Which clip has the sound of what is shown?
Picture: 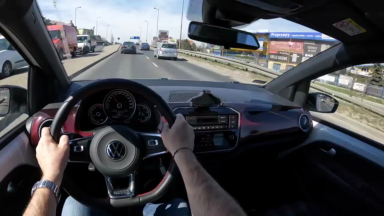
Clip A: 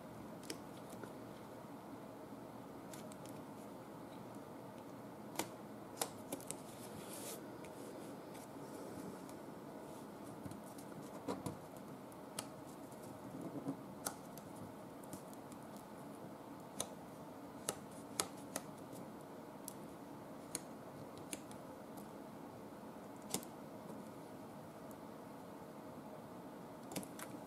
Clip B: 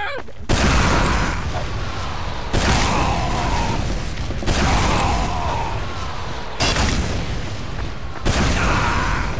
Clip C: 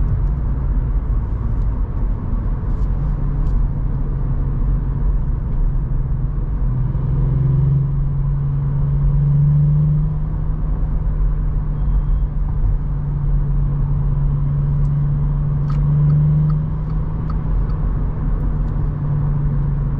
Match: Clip C